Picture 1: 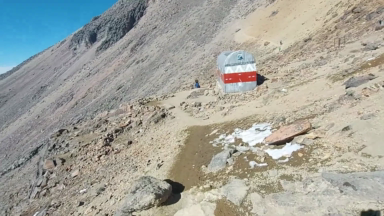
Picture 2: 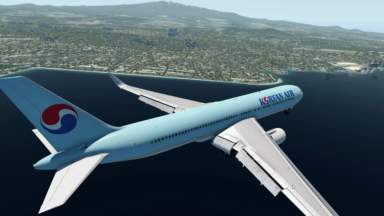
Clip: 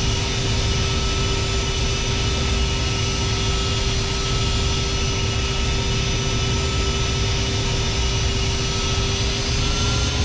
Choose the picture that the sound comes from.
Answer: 2